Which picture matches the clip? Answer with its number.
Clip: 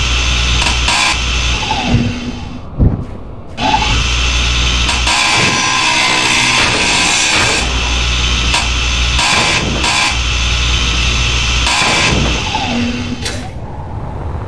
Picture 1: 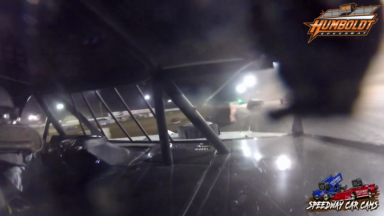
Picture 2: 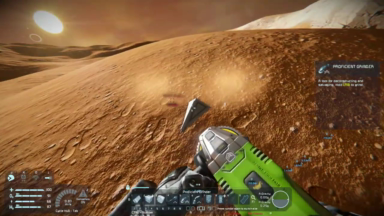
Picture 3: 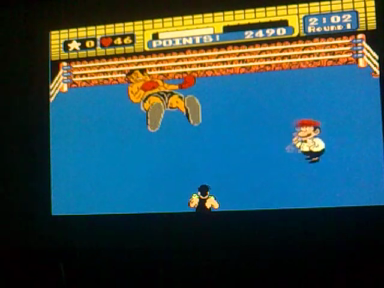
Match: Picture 2